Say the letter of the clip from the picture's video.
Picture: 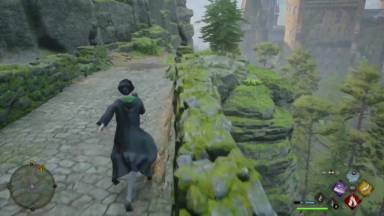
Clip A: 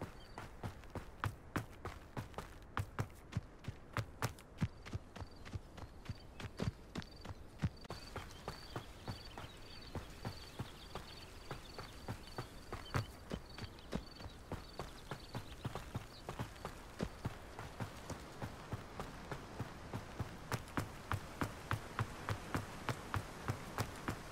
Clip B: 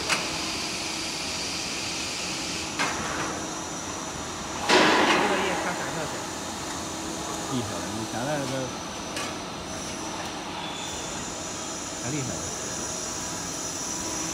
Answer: A